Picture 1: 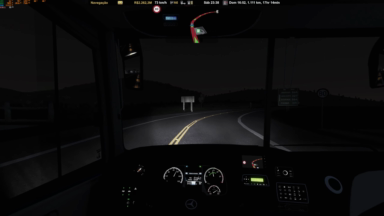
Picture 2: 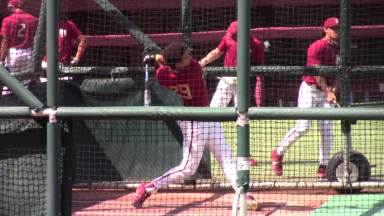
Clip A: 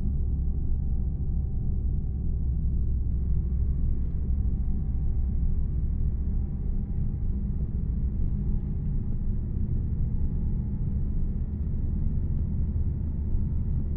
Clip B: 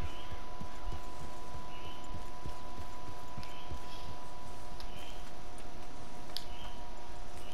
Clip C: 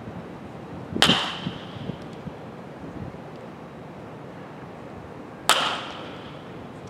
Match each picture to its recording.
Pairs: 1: A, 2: C